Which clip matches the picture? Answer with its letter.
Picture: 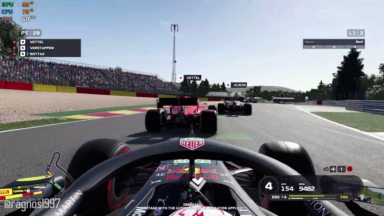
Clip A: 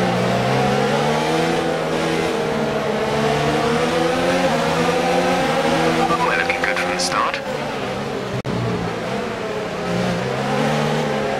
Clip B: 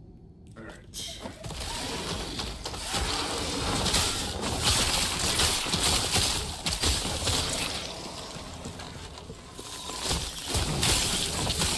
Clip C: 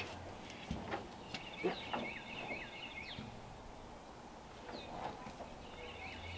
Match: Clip A